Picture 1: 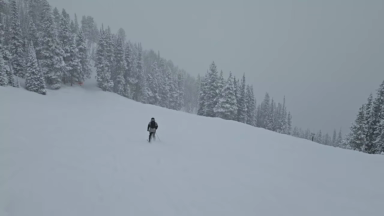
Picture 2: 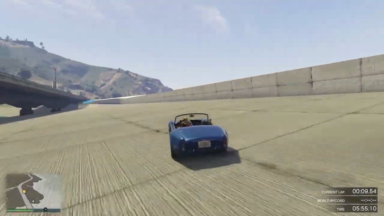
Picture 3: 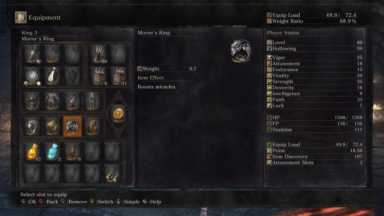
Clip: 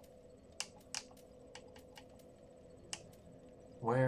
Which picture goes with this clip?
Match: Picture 3